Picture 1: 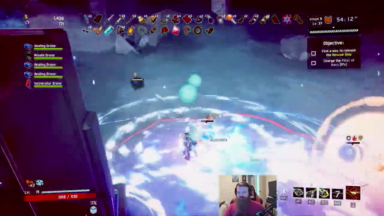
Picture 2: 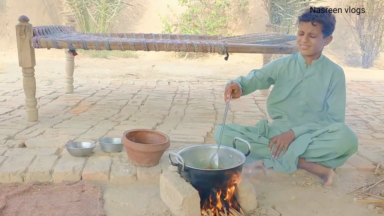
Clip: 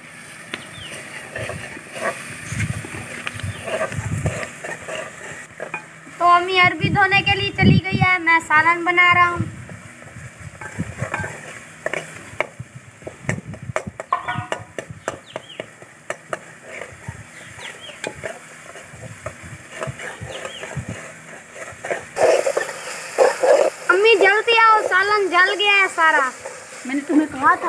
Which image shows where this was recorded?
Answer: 2